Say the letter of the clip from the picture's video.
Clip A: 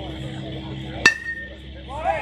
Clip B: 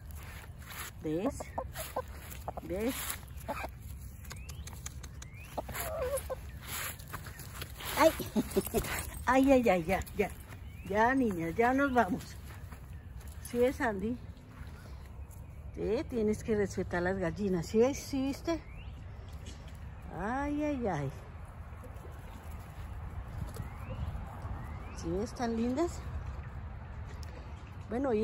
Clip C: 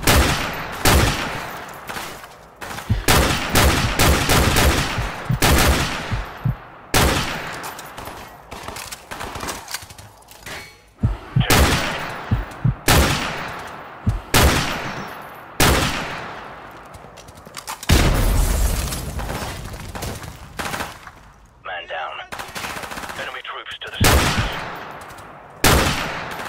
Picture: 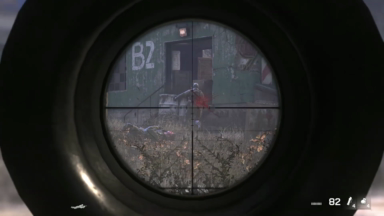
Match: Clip C